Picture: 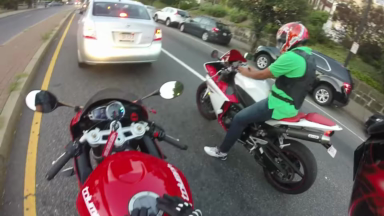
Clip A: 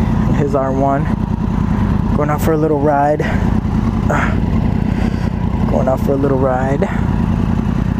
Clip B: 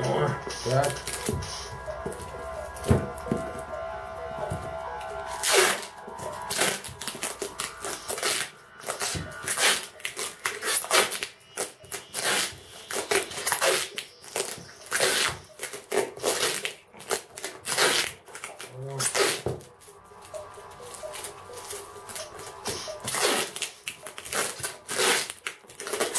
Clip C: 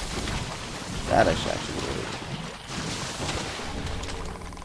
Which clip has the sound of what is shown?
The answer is A